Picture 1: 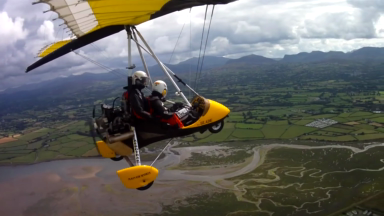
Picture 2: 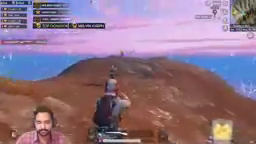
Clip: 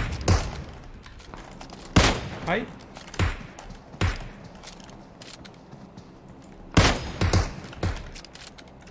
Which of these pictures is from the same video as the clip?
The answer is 2